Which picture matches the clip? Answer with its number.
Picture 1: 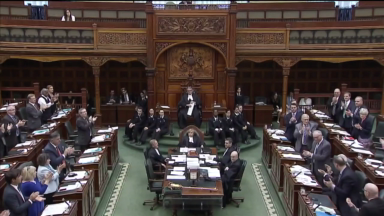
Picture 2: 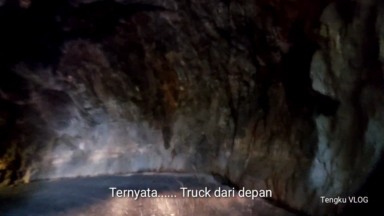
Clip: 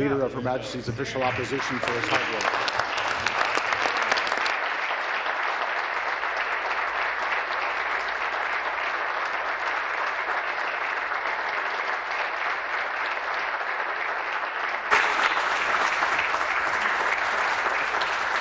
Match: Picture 1